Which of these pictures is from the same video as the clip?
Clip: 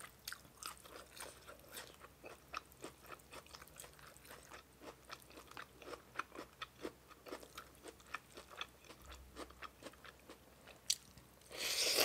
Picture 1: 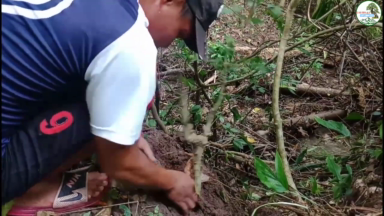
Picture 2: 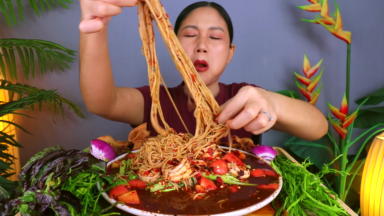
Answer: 2